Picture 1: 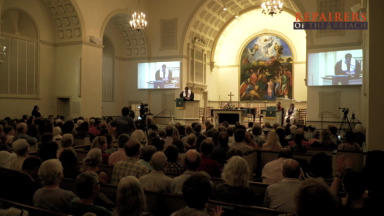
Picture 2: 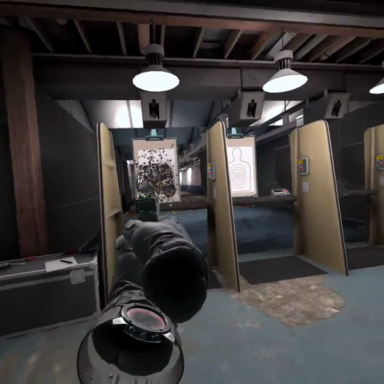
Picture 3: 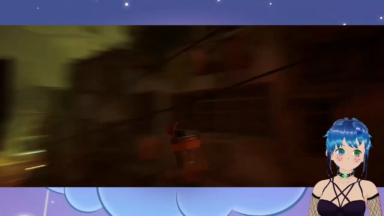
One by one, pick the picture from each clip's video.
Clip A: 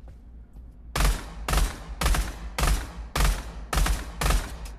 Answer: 2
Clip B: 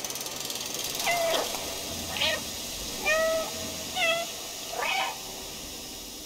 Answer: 3